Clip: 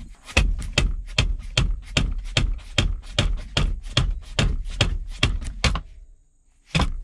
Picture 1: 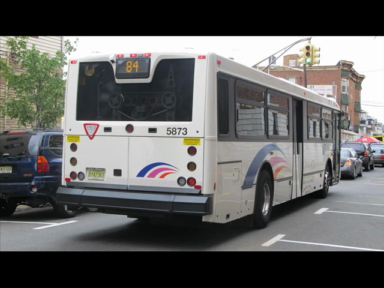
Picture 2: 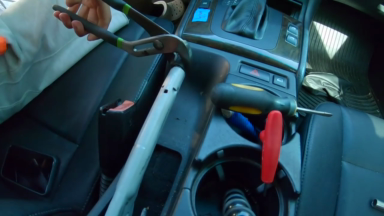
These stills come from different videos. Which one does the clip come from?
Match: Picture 2